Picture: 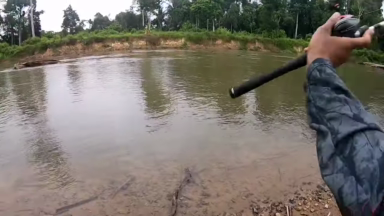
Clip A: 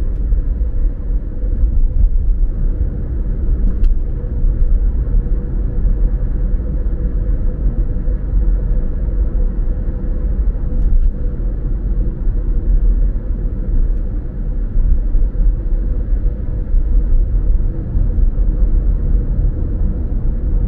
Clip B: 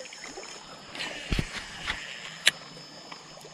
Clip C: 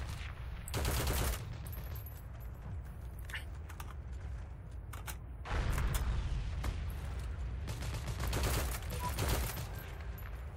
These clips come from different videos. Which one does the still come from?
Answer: B